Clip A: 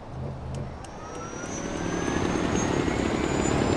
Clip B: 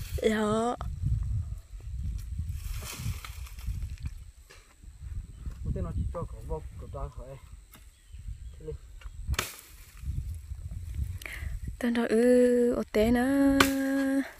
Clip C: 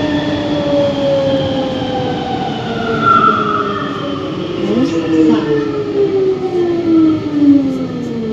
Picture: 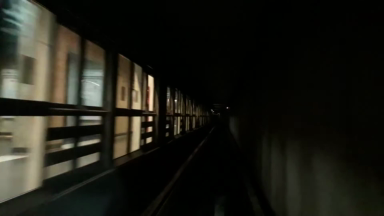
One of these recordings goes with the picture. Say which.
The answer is C